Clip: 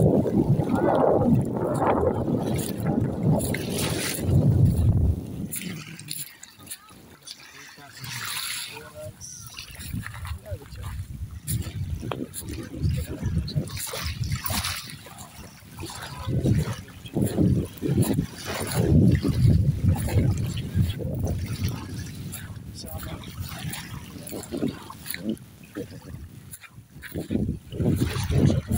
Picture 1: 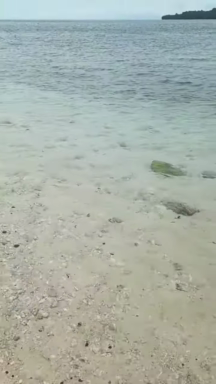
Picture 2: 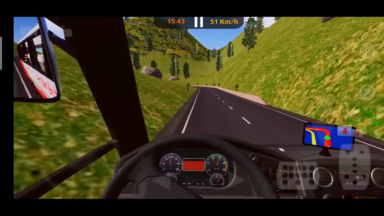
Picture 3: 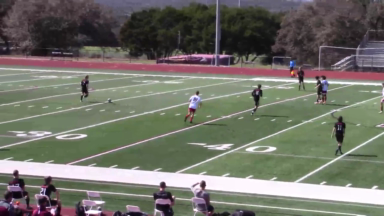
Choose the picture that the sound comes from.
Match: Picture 1